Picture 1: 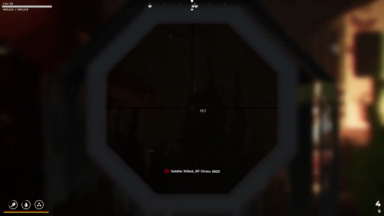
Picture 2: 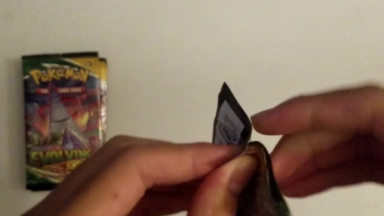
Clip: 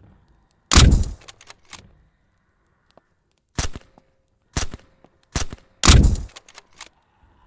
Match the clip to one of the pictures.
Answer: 1